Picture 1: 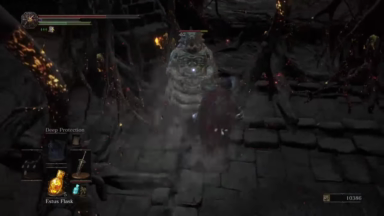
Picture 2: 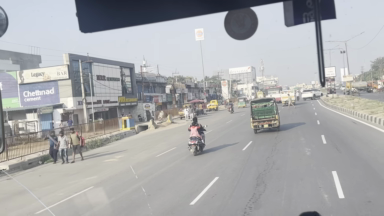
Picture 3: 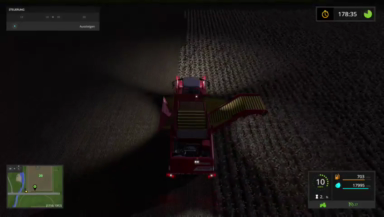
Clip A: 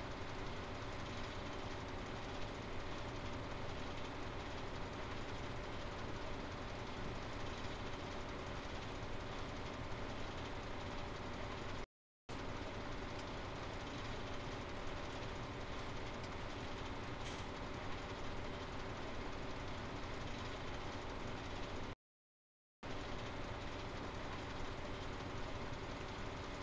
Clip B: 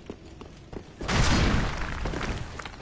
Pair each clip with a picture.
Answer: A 3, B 1